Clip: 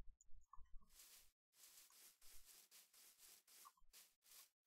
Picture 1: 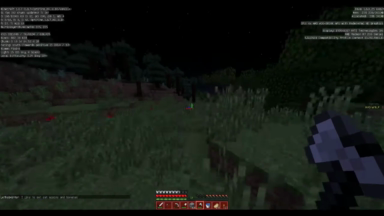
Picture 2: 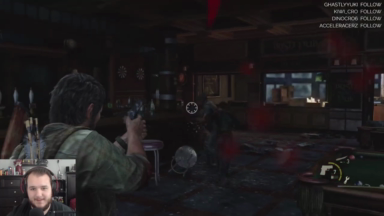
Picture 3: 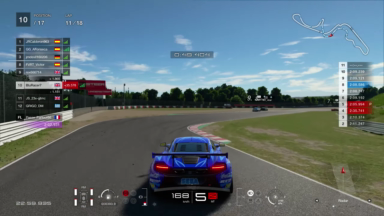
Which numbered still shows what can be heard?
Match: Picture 1